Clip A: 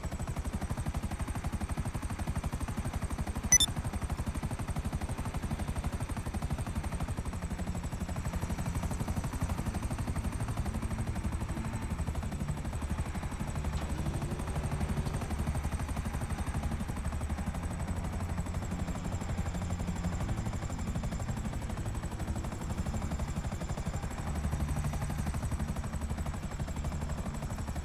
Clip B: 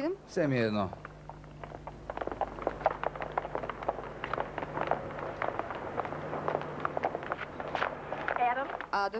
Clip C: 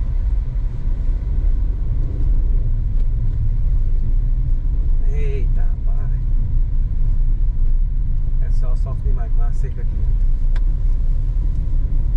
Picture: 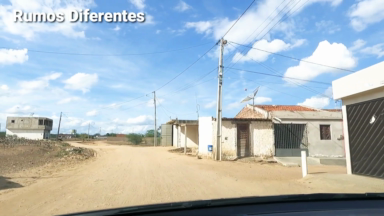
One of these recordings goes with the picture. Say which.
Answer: C